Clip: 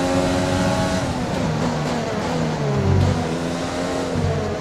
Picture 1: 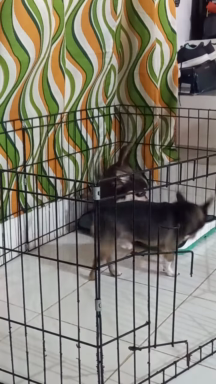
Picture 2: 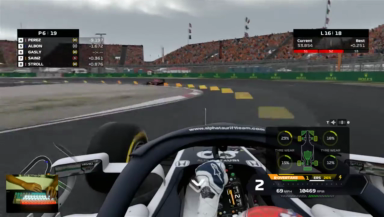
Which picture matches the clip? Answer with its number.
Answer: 2